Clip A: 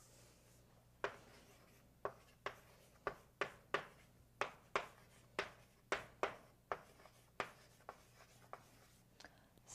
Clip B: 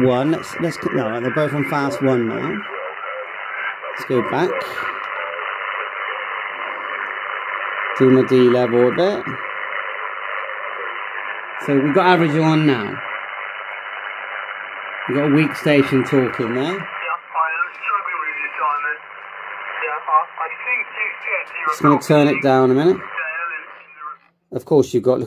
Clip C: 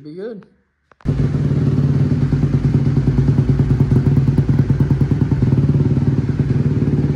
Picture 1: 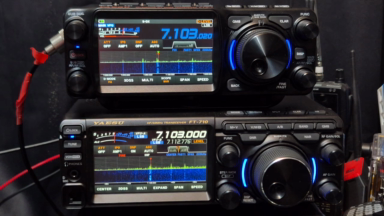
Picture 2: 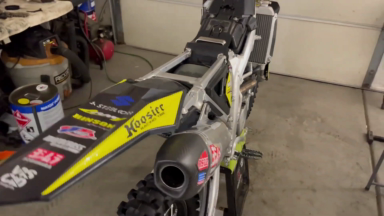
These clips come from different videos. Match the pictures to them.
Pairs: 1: B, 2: C